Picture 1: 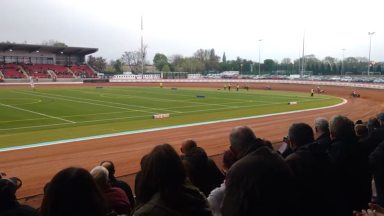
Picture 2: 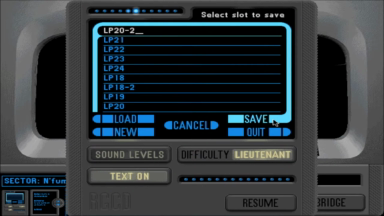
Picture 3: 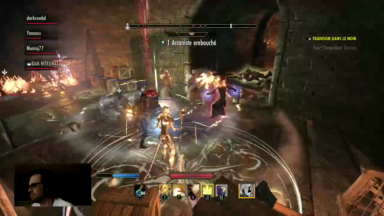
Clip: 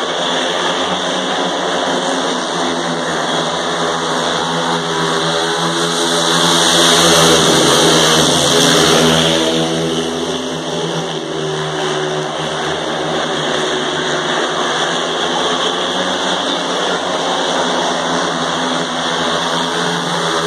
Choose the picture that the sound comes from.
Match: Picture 1